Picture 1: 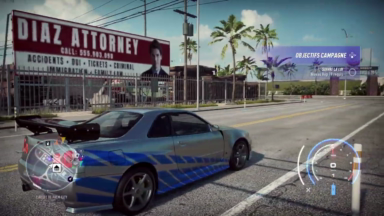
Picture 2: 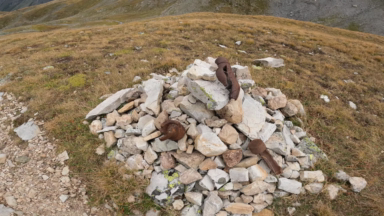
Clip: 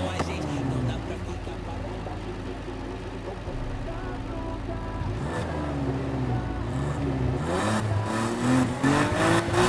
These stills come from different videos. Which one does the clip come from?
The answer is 1